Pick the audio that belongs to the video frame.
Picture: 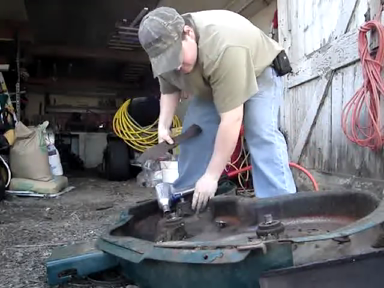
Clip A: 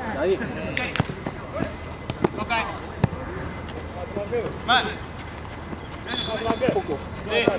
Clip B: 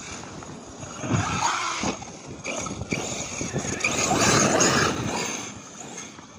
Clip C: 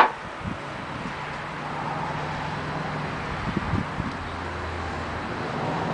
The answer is C